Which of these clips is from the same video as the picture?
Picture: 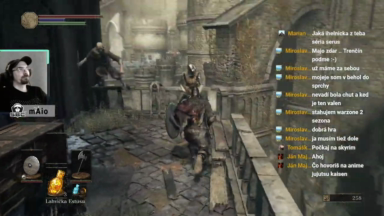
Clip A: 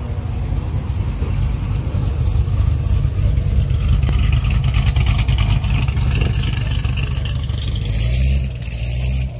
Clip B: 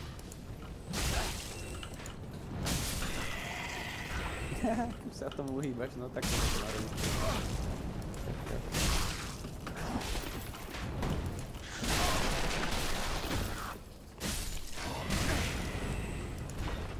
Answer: B